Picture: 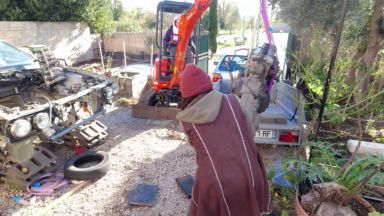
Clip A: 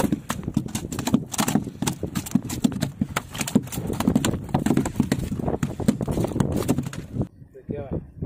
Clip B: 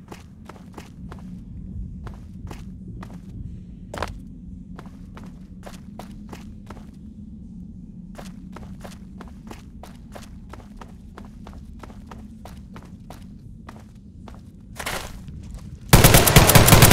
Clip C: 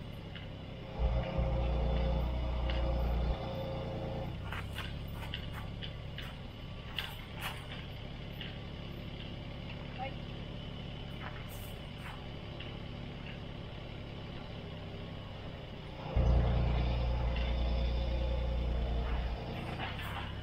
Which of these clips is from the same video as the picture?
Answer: C